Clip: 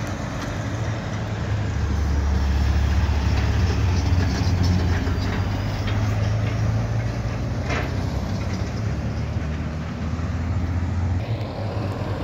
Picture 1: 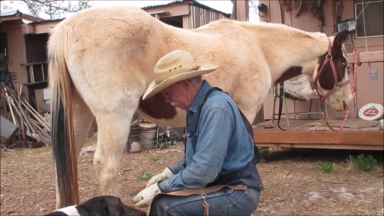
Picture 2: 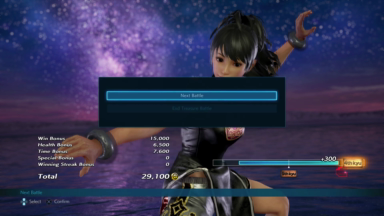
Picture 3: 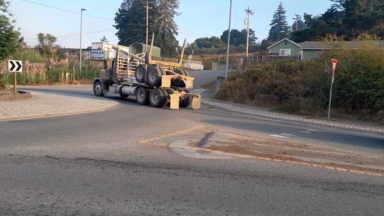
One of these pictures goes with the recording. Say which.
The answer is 3